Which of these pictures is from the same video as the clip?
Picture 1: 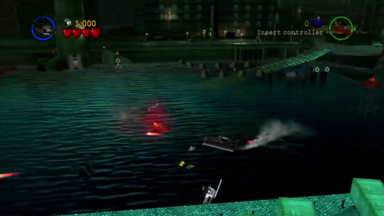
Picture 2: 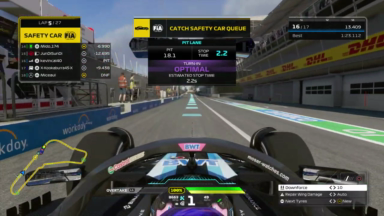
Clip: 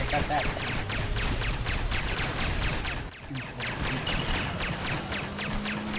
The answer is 1